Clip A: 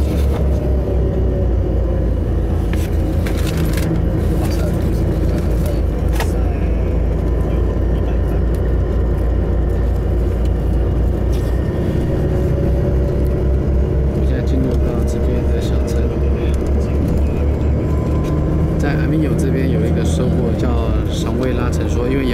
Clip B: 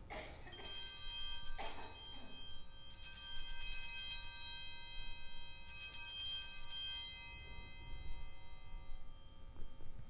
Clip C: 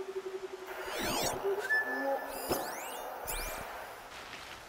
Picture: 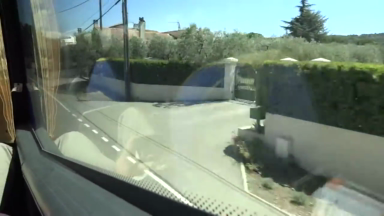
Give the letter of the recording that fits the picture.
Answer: A